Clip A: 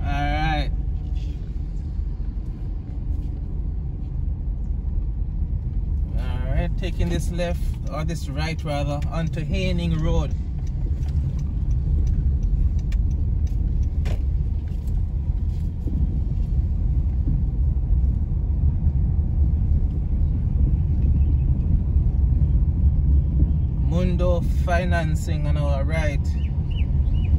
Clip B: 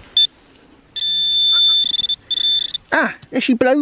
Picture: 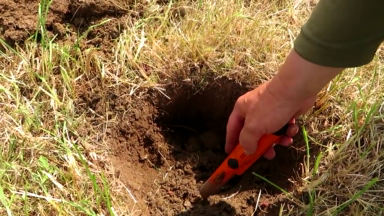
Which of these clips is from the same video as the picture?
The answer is B